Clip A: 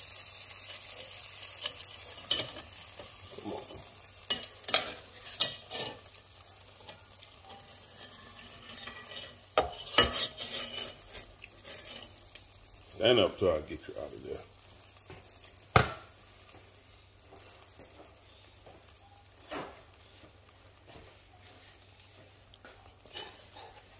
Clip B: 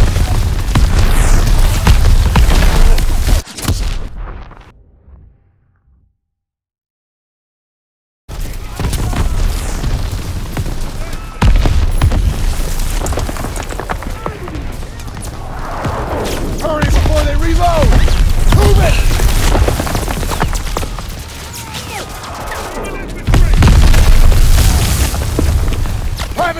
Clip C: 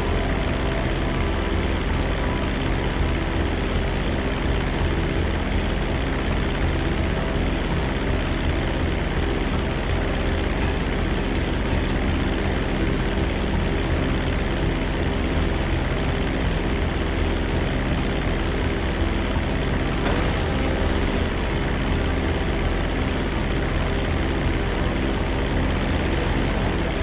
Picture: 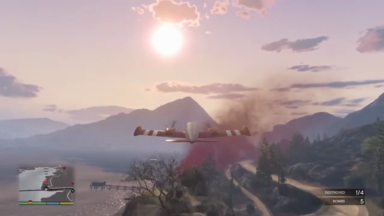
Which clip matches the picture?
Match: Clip C